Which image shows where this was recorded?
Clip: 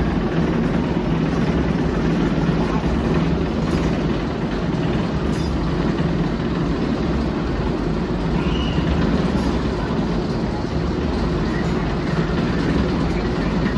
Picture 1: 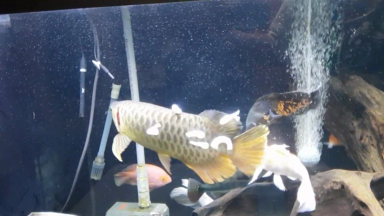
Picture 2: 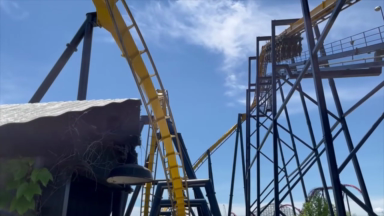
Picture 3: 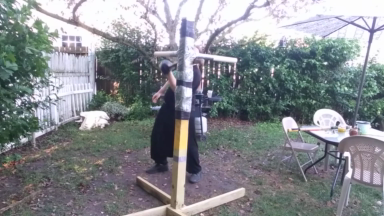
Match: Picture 2